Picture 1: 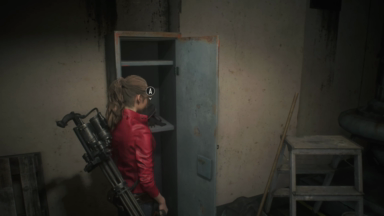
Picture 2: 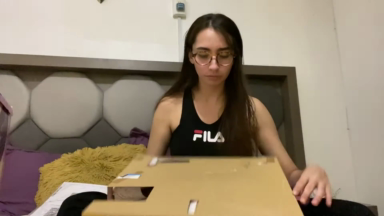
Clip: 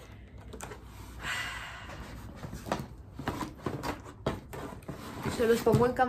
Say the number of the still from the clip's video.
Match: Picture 2